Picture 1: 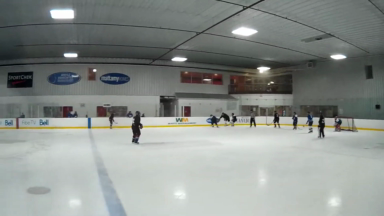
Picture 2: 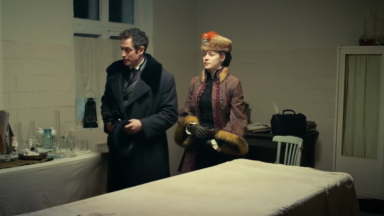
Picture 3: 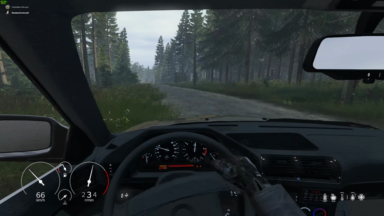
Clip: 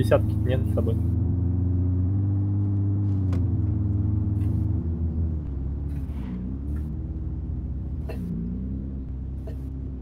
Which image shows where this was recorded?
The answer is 3